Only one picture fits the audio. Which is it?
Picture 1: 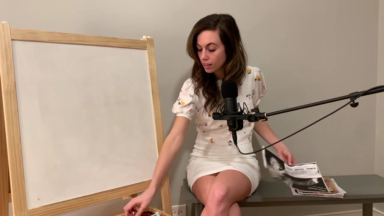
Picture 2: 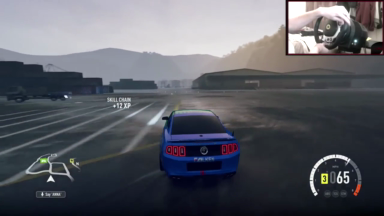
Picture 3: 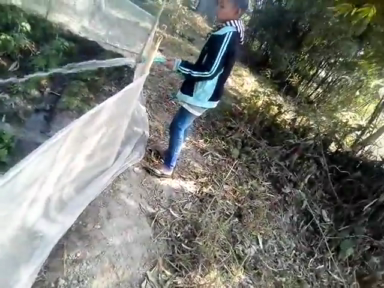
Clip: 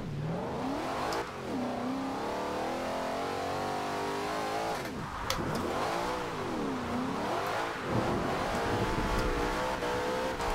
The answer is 2